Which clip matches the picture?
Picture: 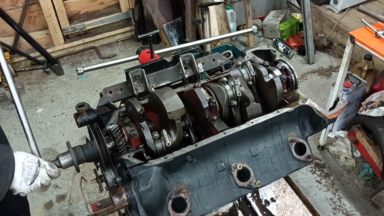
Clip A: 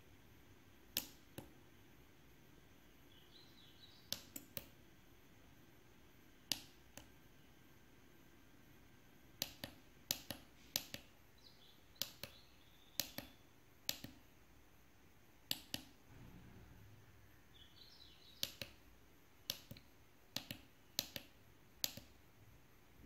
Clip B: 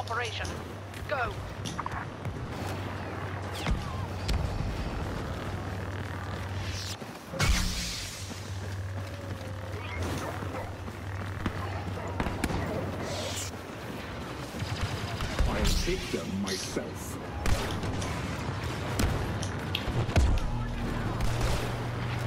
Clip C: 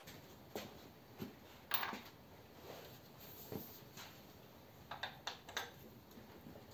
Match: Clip C